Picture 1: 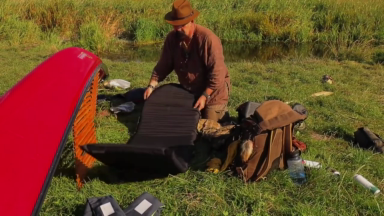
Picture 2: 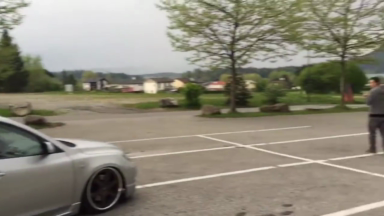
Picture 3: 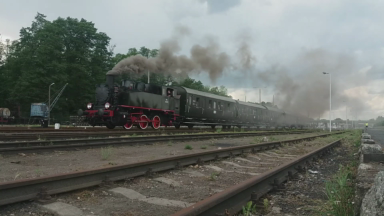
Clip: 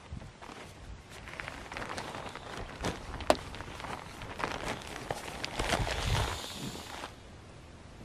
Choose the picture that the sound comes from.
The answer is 1